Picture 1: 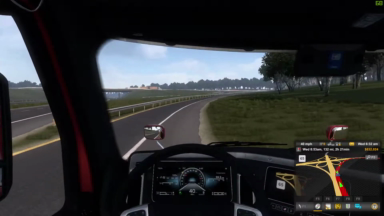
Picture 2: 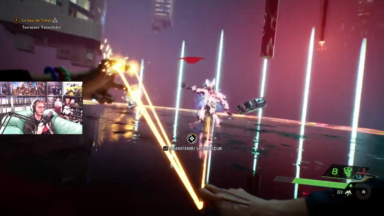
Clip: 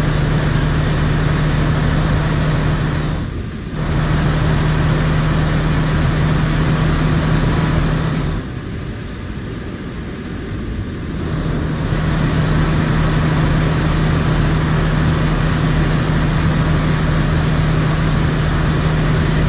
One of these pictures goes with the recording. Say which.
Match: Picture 1